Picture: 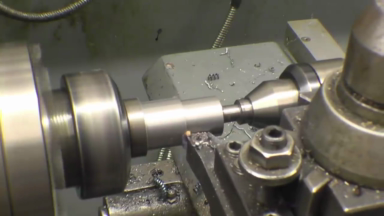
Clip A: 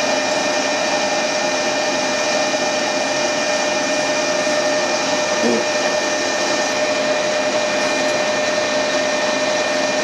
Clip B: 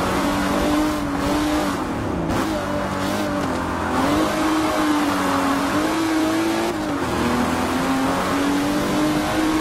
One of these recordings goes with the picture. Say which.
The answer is A